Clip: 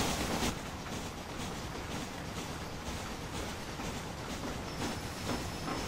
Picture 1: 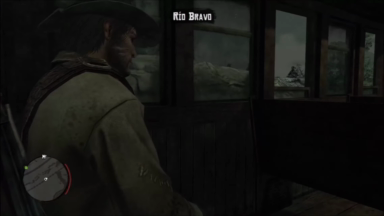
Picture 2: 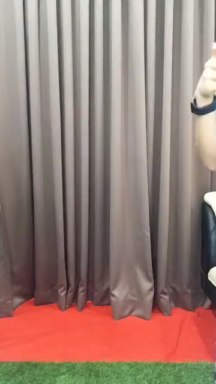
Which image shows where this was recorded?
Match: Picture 1